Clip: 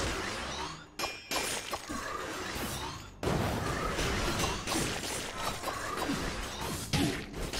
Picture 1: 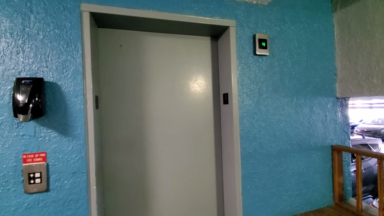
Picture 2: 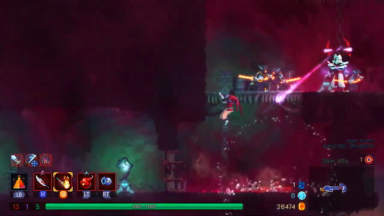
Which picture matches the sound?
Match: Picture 2